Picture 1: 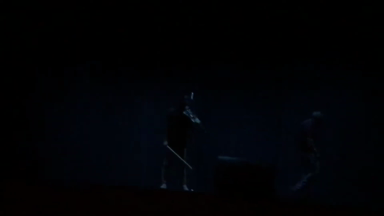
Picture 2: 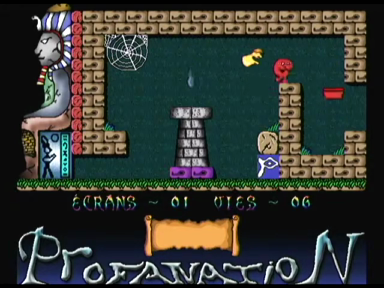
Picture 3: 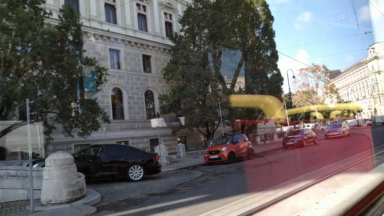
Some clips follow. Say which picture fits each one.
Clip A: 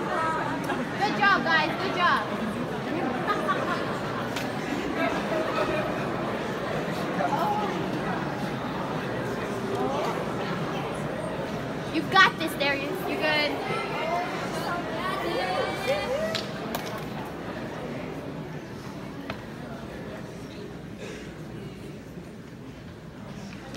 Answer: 1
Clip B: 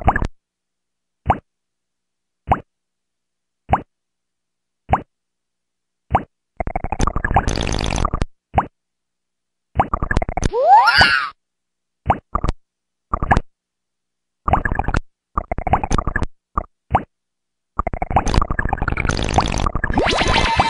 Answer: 2